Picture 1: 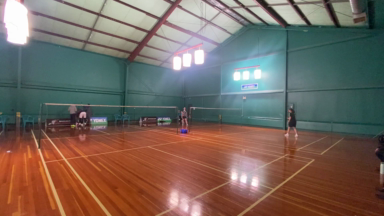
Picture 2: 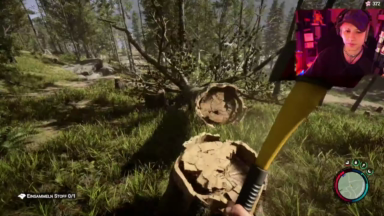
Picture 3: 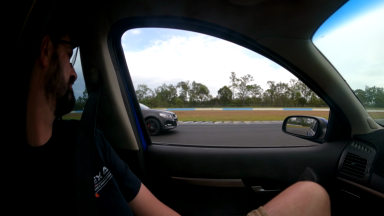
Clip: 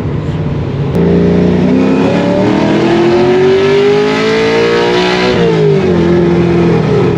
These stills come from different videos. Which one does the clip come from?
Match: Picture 3